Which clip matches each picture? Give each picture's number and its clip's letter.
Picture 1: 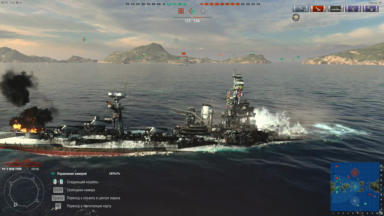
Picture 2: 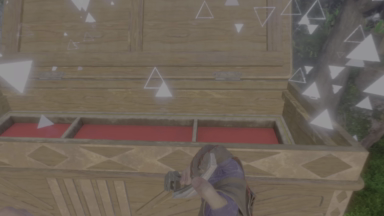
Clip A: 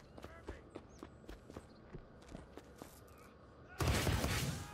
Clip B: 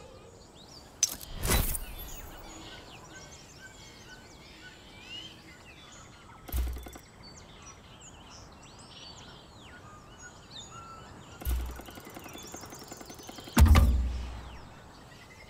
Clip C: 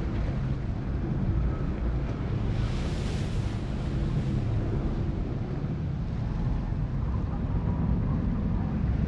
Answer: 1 C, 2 B